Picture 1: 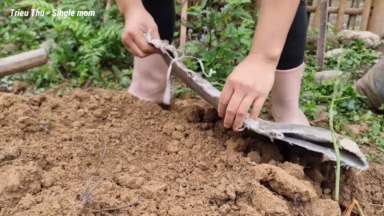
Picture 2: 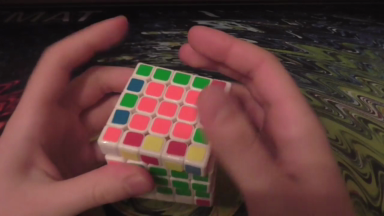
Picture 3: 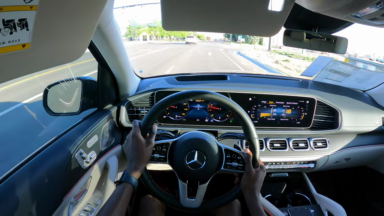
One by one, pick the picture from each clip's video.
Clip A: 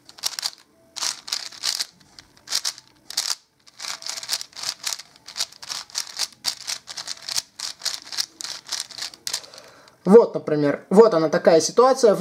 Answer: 2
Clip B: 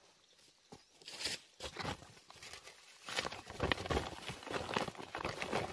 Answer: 1